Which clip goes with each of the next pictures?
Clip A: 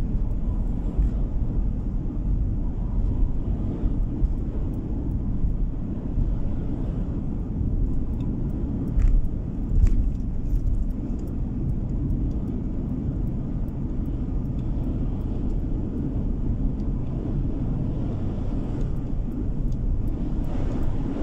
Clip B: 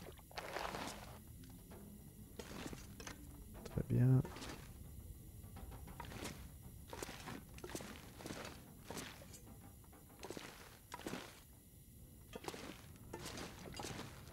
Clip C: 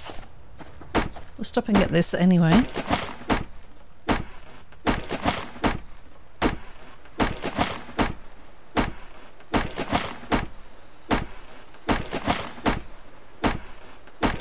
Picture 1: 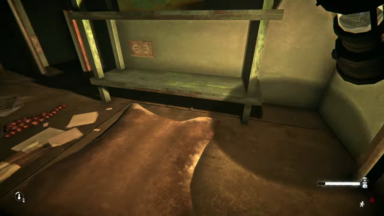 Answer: B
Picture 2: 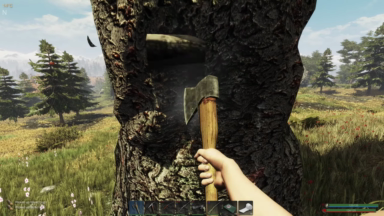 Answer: C